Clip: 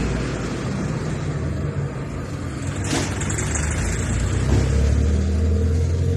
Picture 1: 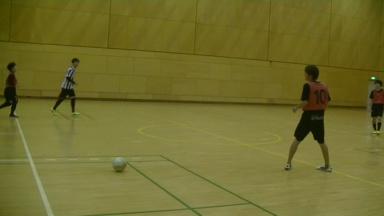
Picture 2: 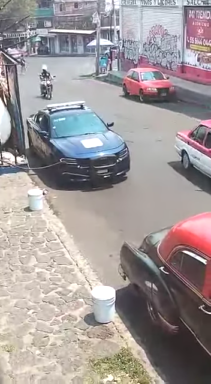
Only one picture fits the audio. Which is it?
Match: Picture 2